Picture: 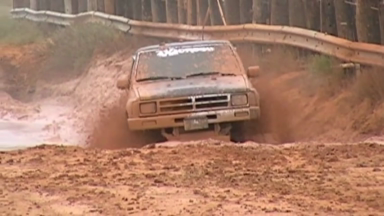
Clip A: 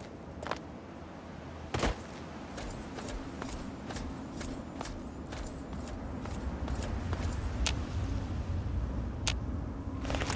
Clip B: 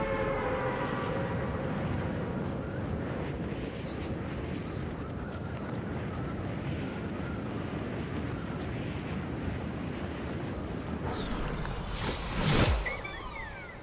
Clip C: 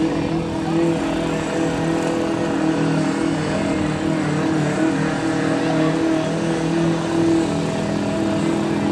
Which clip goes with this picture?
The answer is C